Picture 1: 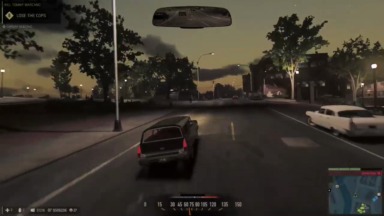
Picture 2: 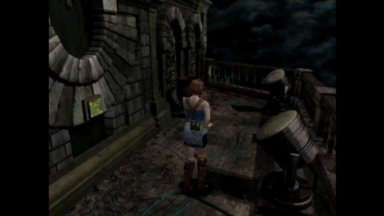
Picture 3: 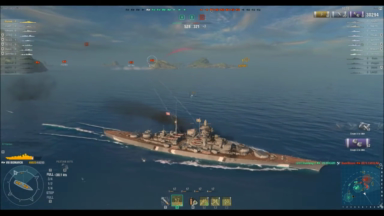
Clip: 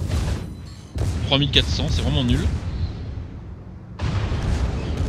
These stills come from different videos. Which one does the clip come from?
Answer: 3